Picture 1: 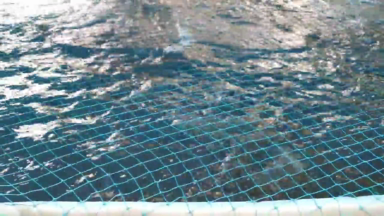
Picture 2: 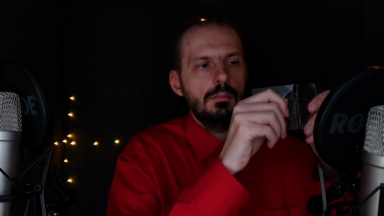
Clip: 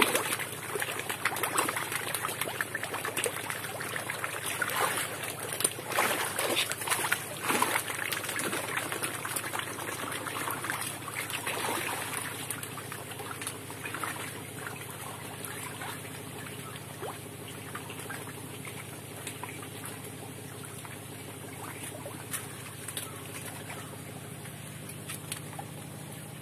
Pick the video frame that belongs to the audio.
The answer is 1